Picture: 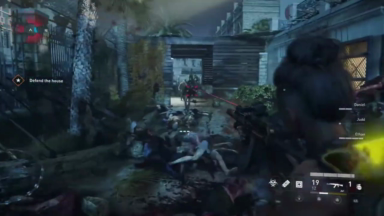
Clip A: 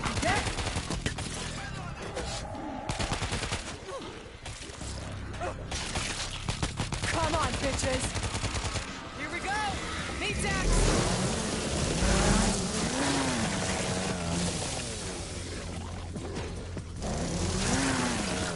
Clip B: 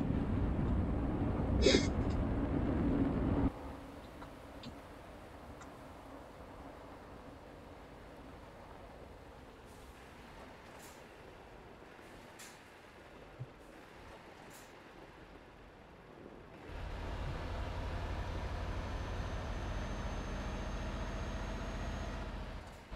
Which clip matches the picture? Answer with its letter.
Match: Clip A